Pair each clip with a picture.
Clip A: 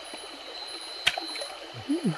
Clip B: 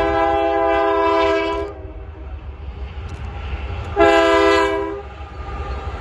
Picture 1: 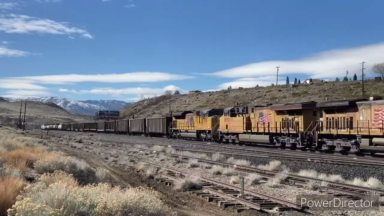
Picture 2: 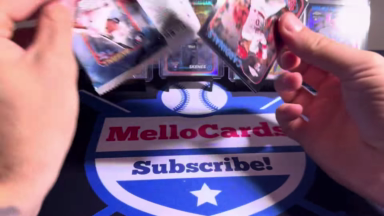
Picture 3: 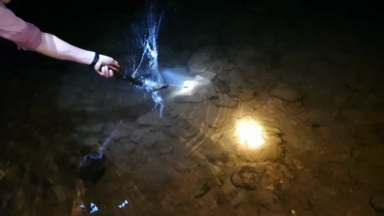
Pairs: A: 3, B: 1